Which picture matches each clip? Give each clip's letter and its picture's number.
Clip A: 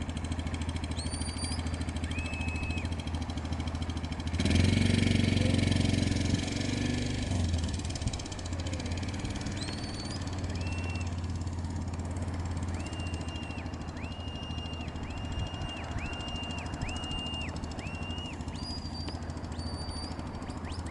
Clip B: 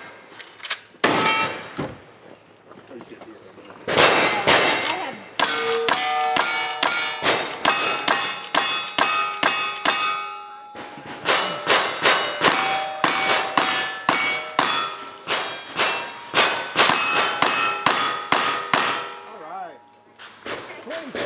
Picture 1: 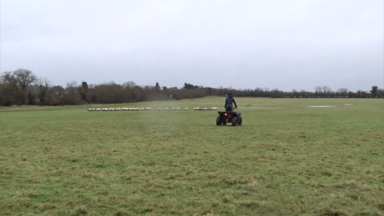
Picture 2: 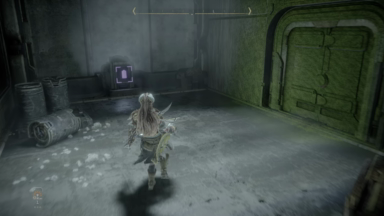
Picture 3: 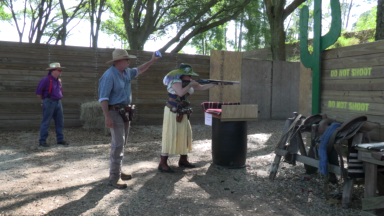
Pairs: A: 1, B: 3